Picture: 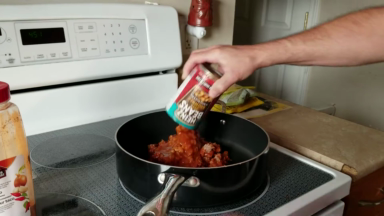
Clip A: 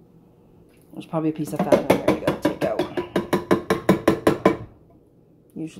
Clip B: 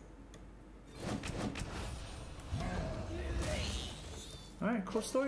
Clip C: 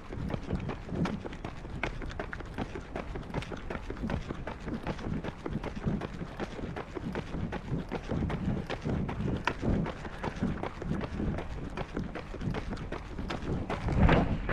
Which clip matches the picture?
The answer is A